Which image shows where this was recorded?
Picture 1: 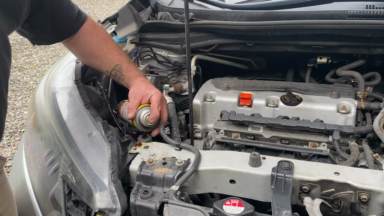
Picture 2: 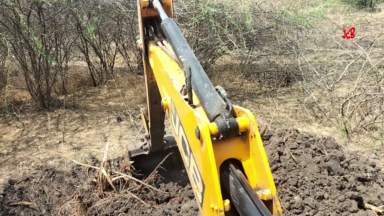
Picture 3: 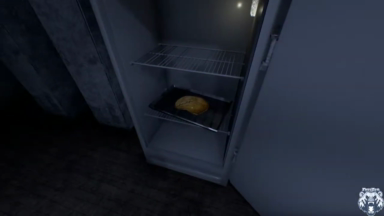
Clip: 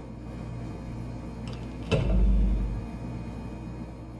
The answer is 3